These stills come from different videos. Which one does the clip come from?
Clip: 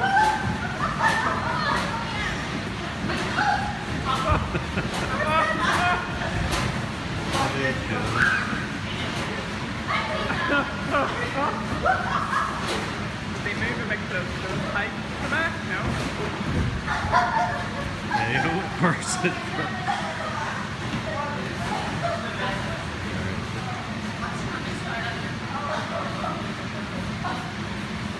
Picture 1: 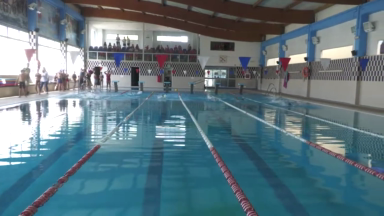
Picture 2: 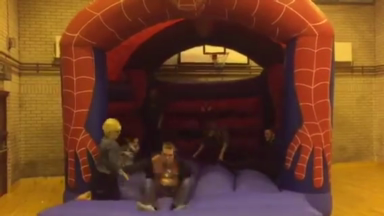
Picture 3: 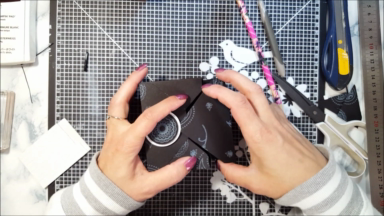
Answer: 2